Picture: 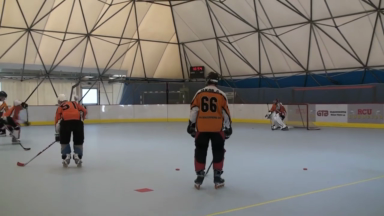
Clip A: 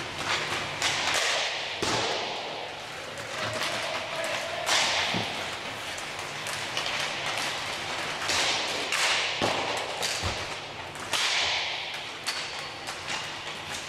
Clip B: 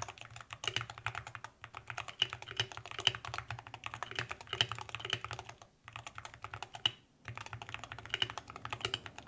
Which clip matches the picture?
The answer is A